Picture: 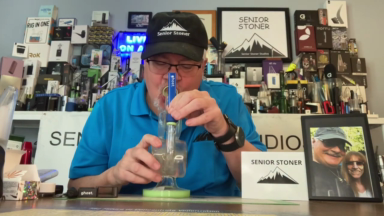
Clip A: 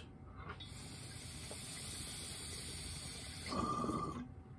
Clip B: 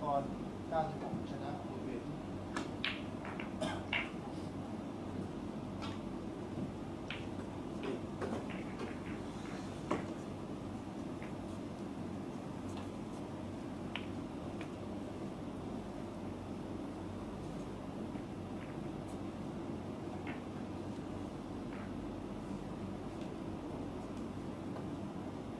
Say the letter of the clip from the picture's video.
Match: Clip A